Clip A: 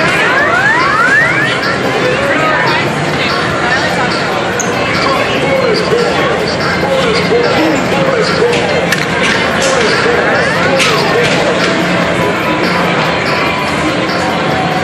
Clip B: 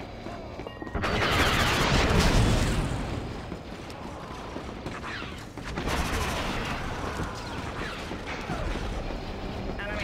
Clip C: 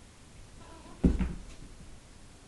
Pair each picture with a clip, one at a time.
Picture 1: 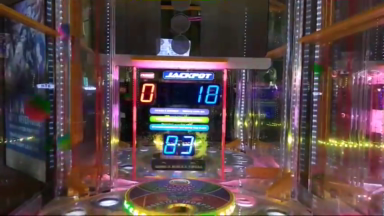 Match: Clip A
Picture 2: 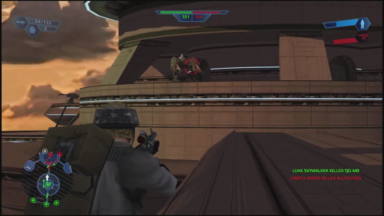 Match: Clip B